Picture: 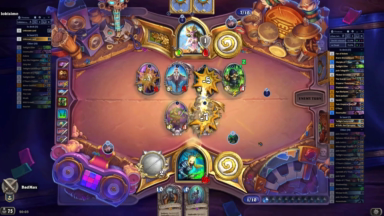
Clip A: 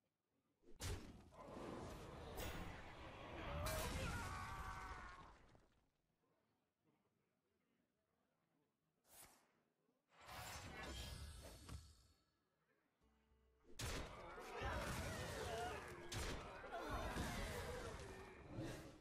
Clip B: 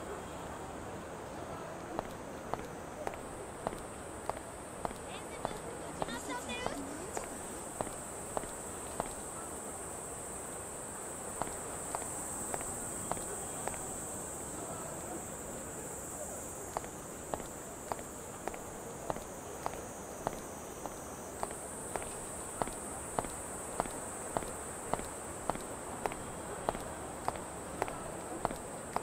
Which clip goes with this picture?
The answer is A